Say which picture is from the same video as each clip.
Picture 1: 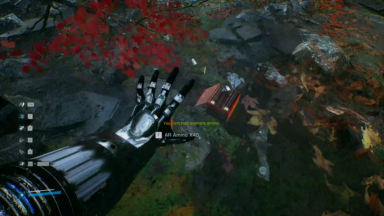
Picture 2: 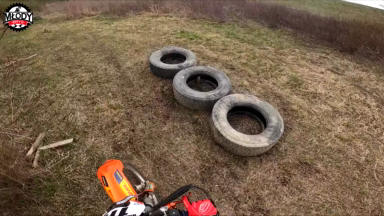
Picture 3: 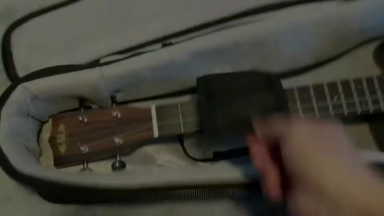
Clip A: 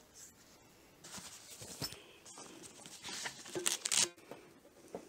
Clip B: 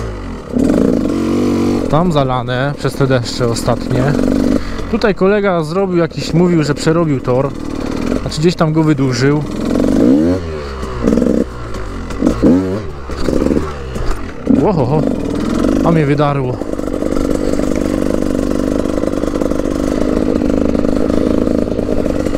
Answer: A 3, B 2